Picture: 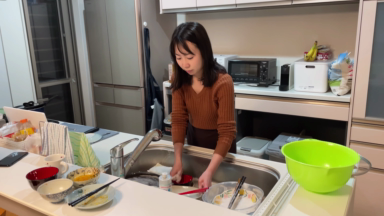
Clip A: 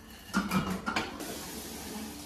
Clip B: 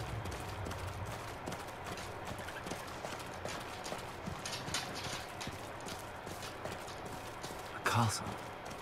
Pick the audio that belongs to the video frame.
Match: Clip A